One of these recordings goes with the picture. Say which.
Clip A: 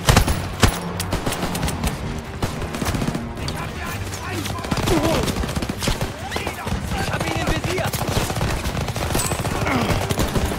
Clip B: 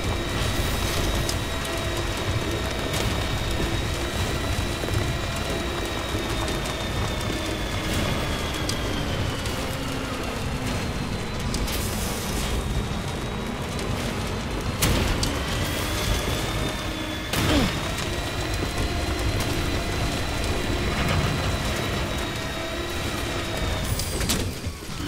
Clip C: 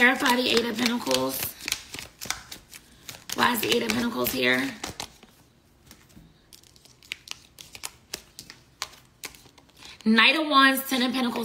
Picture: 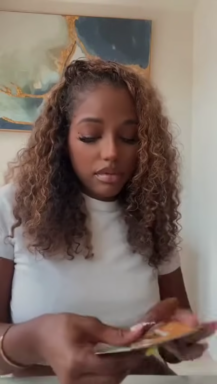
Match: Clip C